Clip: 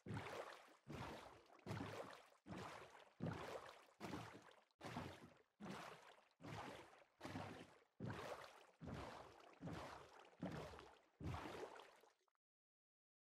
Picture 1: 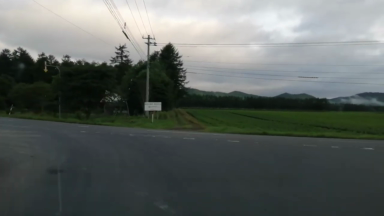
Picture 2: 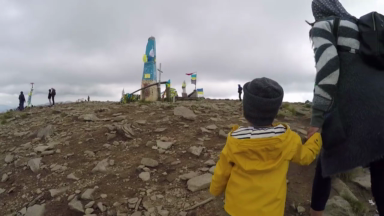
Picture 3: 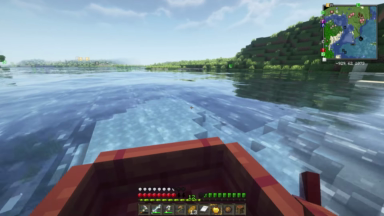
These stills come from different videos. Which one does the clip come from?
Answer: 3